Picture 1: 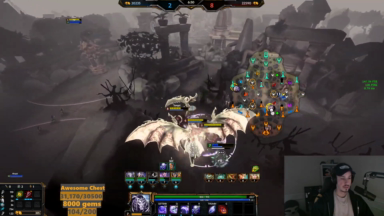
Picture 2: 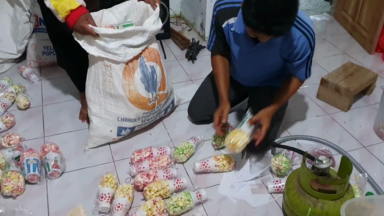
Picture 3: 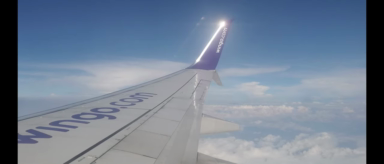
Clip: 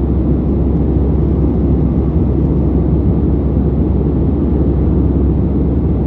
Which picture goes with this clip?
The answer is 3